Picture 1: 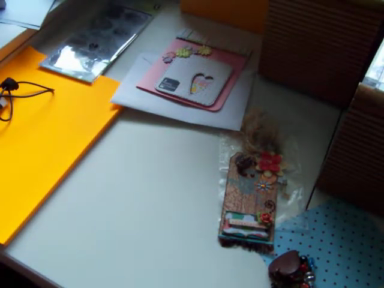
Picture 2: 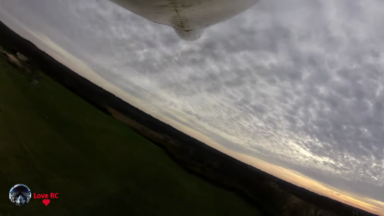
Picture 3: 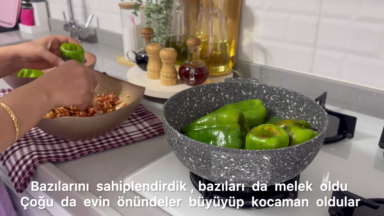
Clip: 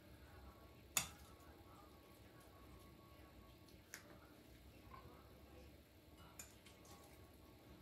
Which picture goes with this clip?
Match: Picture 3